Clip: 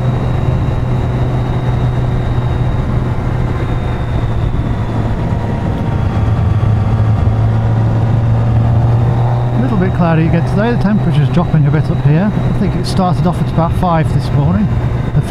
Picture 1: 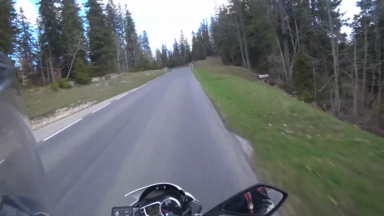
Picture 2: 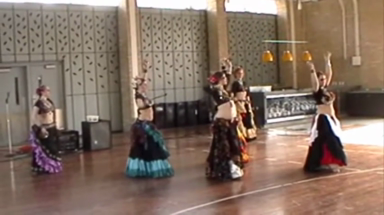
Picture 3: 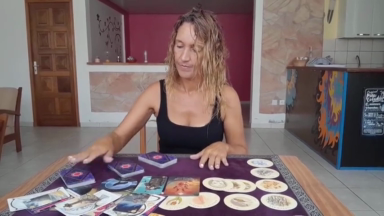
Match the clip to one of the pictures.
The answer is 1